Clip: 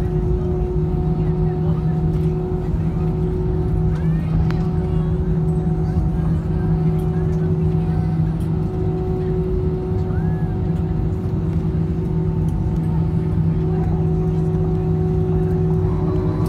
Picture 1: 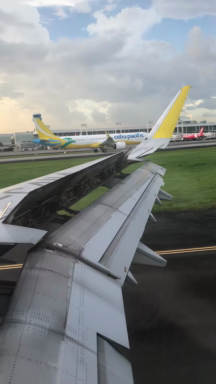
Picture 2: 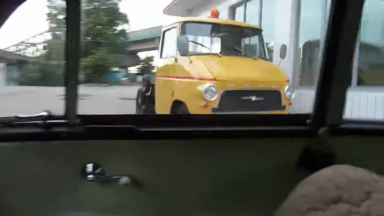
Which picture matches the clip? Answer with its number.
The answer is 1